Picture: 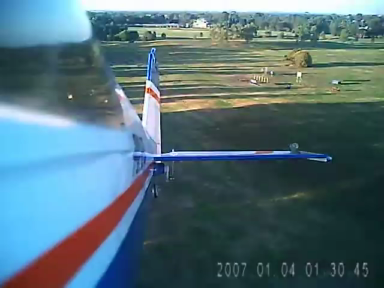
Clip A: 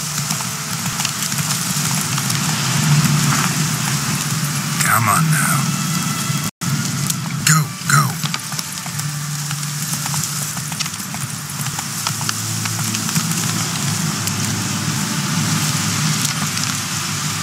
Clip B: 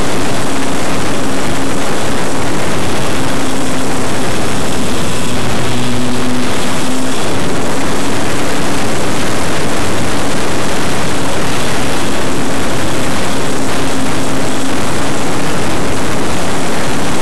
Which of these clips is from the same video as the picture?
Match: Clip B